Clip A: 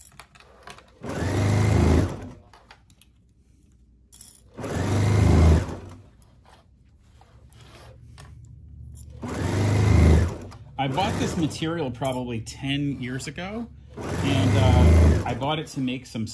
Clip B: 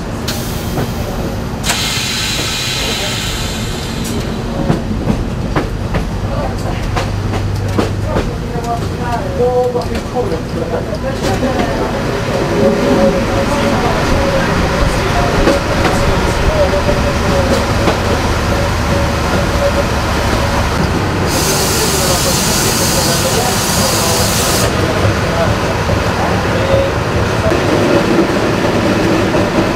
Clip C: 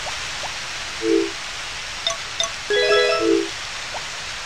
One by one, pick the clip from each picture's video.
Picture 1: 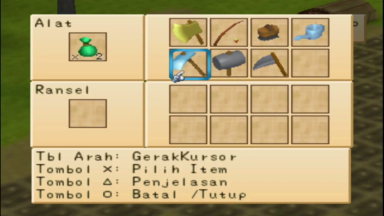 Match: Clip C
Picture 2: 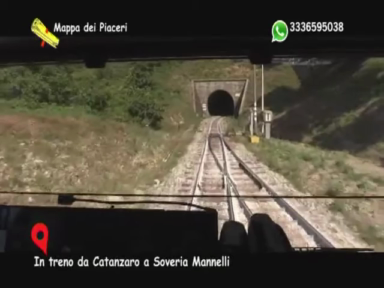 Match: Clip B